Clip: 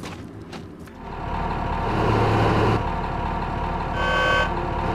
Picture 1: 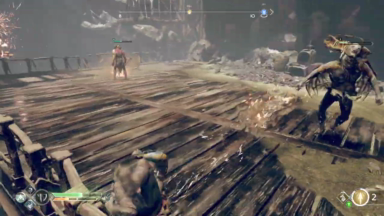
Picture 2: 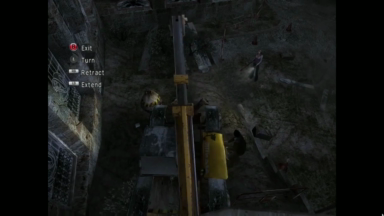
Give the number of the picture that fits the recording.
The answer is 2